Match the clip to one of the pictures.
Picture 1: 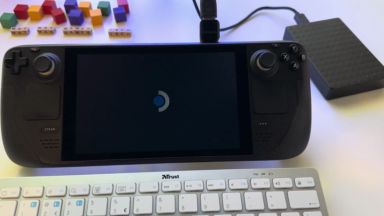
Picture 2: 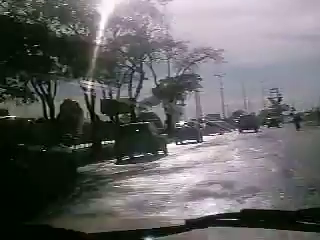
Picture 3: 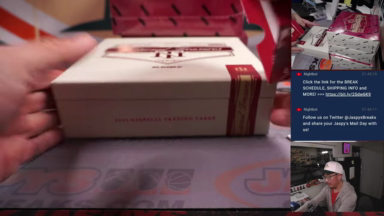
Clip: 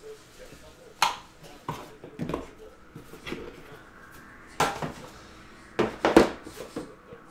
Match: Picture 3